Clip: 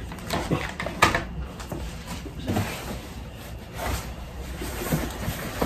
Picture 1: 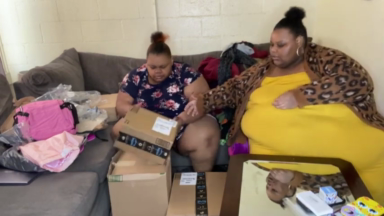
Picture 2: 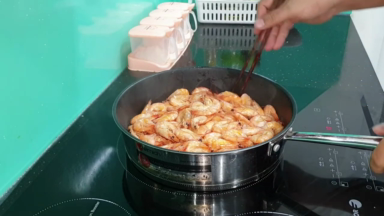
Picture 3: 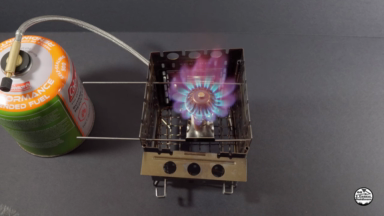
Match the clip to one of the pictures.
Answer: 1